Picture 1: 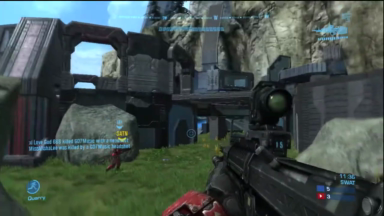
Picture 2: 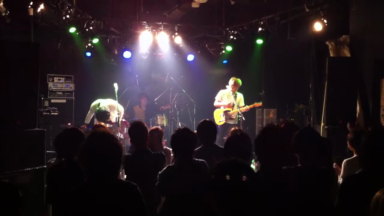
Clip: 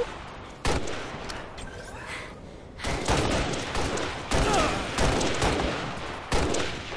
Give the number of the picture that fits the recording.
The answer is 1